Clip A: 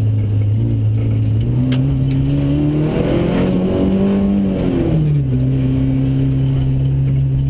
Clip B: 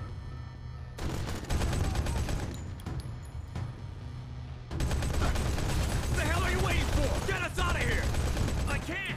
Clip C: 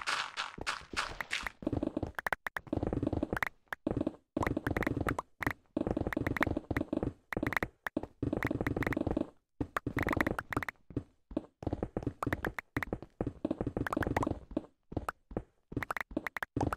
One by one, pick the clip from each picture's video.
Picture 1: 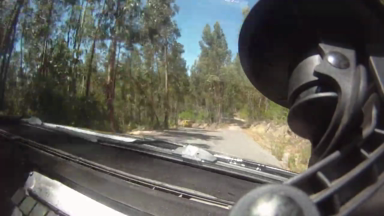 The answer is A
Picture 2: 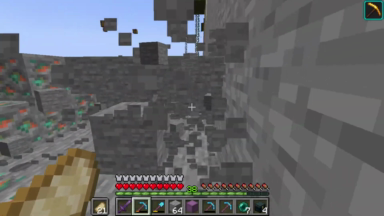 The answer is C